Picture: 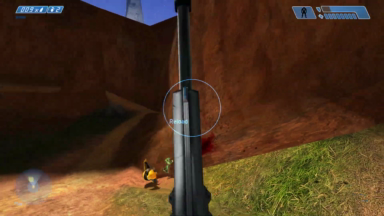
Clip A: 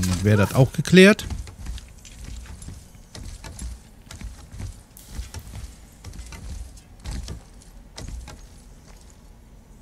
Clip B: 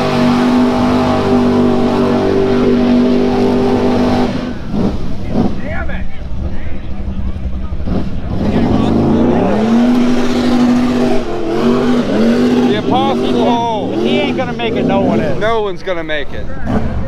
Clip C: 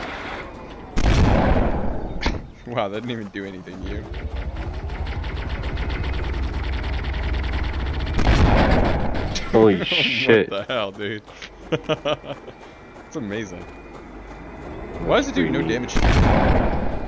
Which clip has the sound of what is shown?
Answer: C